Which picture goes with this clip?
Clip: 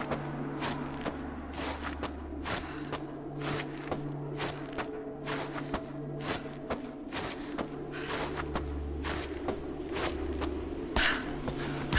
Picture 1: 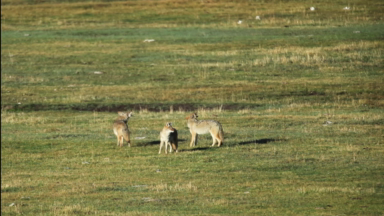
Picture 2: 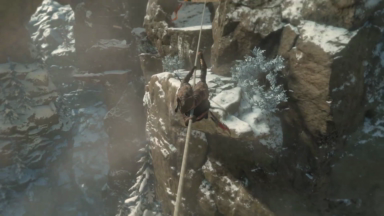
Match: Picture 2